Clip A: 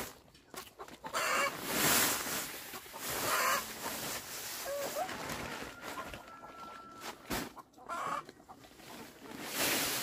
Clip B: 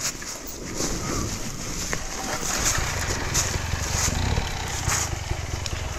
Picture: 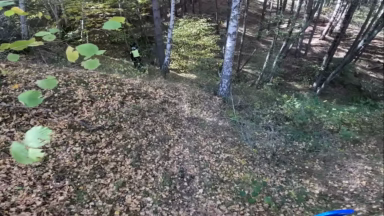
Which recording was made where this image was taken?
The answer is B